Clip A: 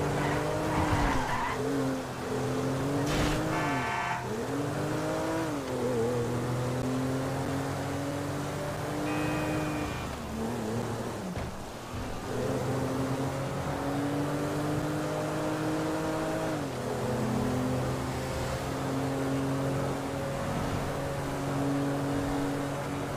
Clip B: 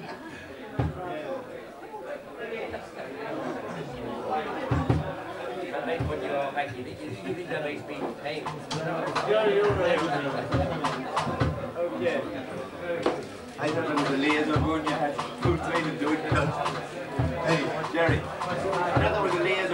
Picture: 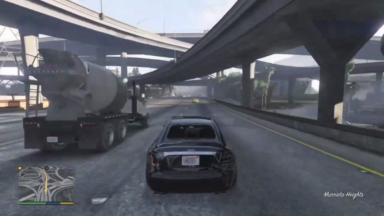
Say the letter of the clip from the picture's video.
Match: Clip A